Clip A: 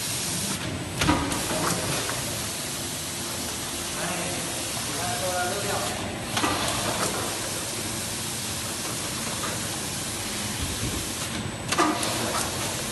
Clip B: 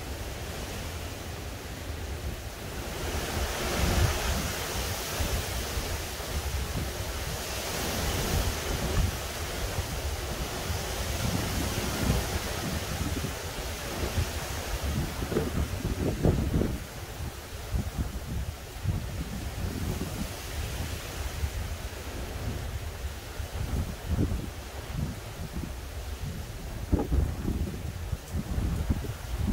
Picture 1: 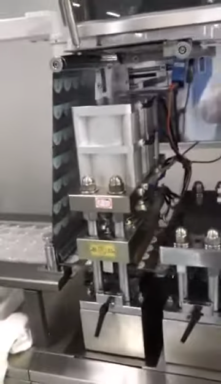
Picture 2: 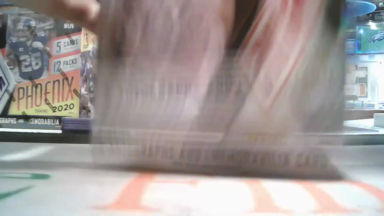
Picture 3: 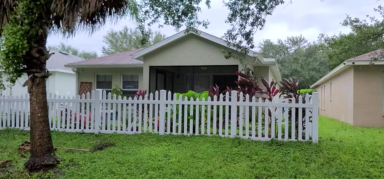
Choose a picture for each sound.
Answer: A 1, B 3